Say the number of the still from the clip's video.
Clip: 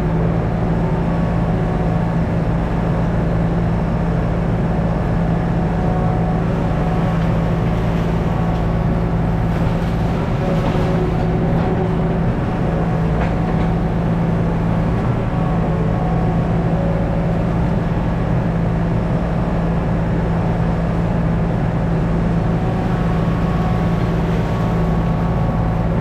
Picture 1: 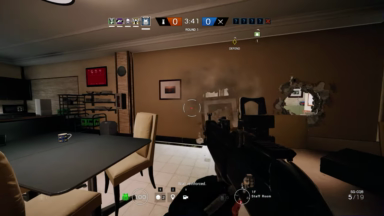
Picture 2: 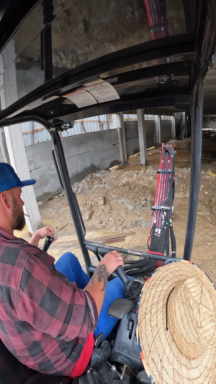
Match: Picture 2